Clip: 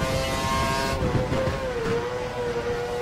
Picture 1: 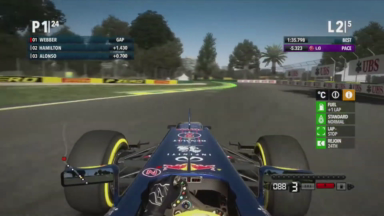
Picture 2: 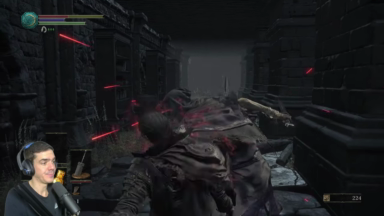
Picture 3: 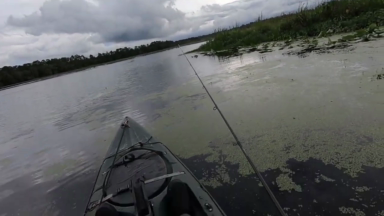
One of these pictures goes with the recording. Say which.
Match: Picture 1